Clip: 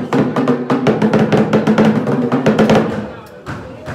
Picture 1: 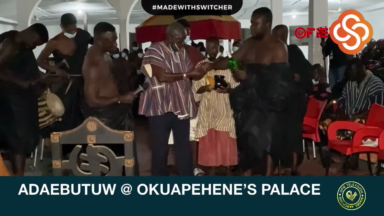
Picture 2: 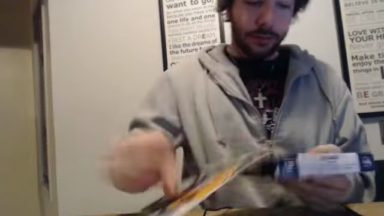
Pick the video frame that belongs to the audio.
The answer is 1